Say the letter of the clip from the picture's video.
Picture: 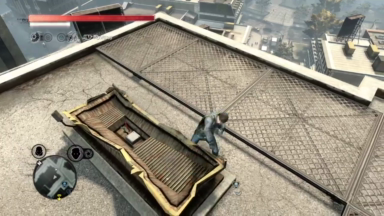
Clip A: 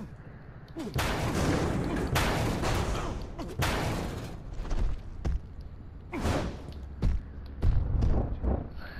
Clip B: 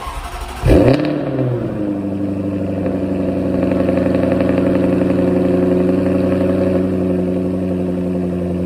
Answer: A